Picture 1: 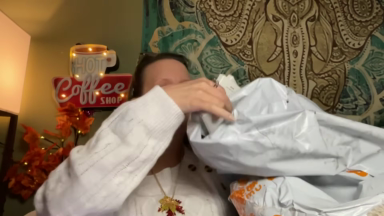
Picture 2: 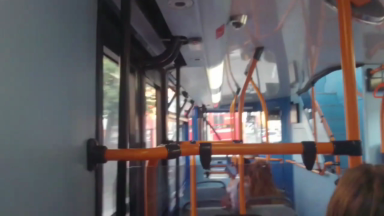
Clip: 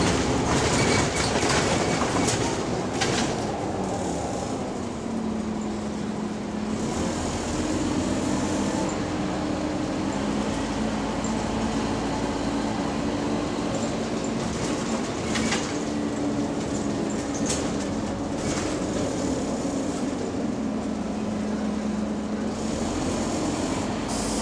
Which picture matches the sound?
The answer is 2